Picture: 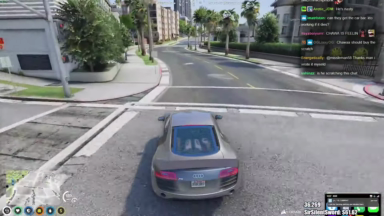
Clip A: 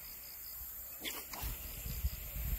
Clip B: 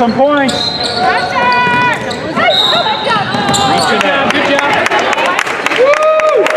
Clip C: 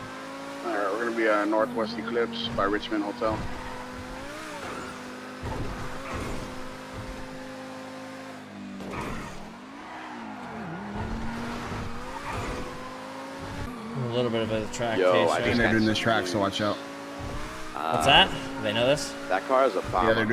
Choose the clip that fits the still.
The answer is C